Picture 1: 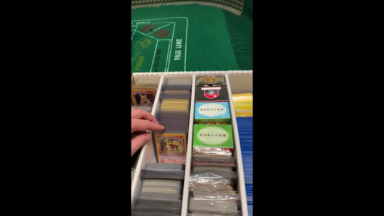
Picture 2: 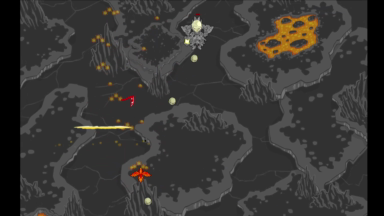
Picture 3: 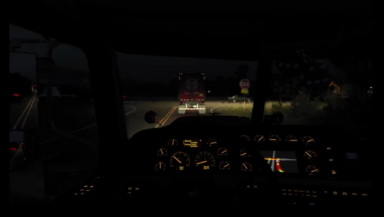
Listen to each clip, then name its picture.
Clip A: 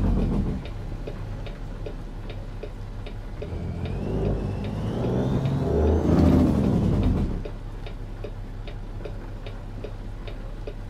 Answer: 3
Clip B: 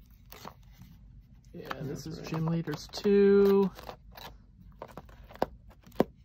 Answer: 1